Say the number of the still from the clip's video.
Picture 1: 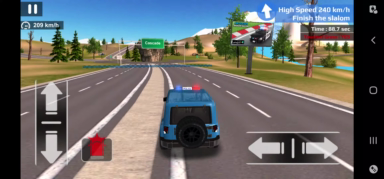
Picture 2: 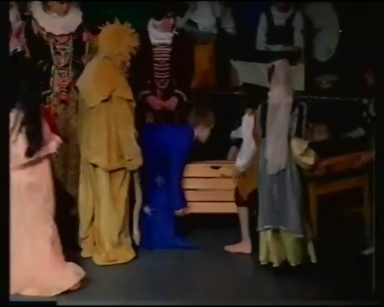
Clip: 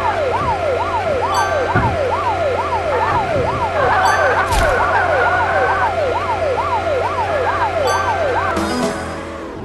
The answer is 1